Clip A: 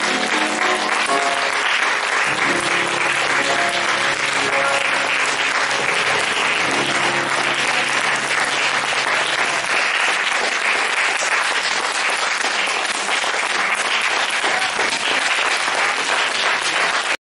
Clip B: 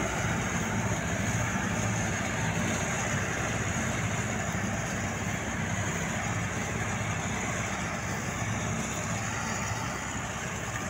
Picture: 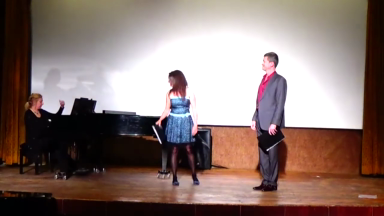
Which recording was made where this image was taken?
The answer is A